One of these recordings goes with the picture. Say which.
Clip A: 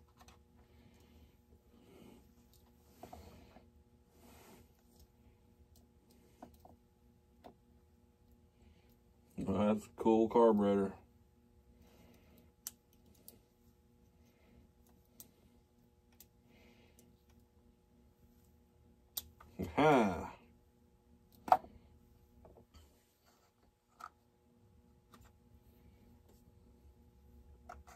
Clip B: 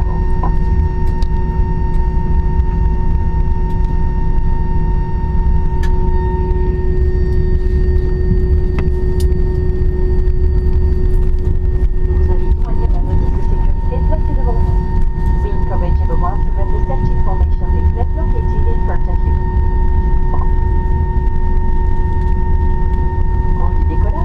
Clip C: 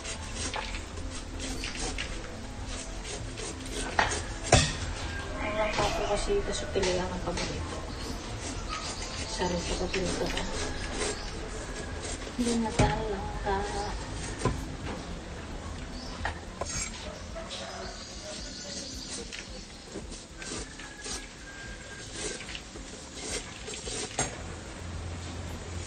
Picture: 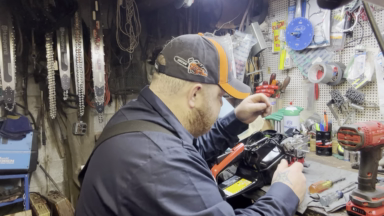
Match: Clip A